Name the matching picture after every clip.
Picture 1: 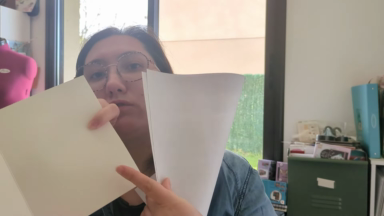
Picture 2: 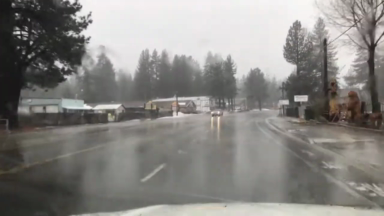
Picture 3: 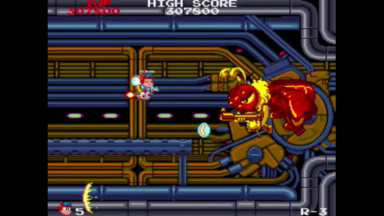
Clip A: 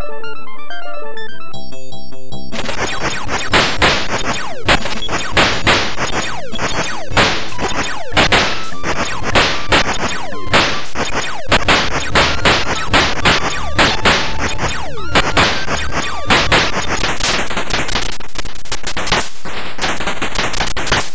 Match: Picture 3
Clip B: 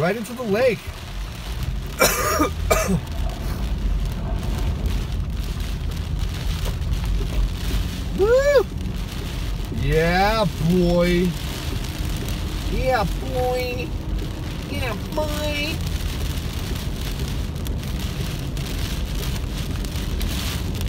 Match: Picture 2